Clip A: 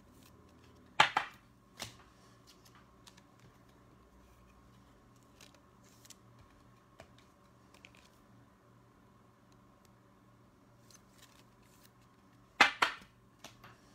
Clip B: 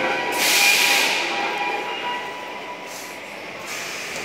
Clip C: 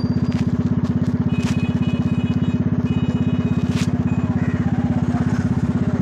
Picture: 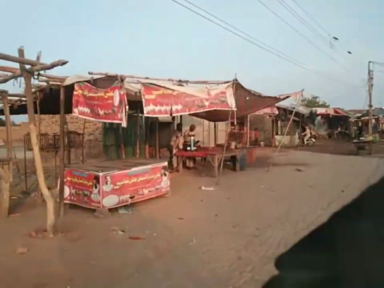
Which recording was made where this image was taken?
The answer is C